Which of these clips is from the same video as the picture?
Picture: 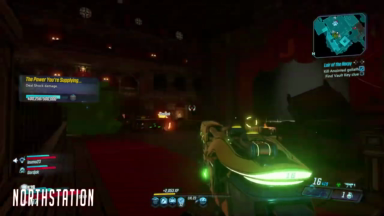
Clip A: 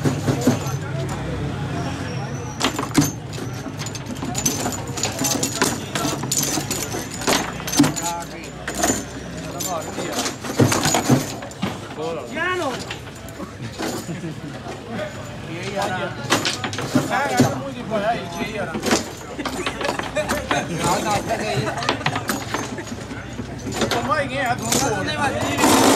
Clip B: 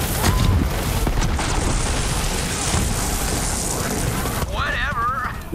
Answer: B